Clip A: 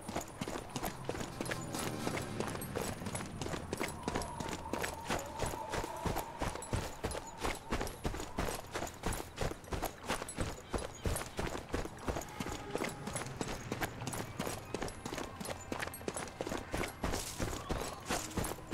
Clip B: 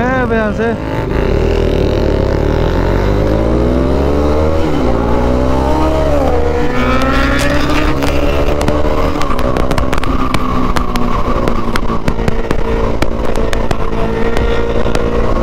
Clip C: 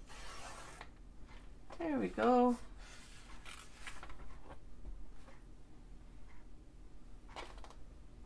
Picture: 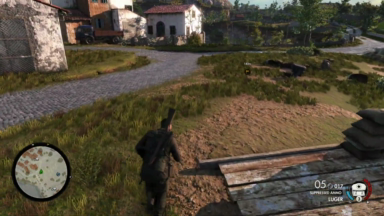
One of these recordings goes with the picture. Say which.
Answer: A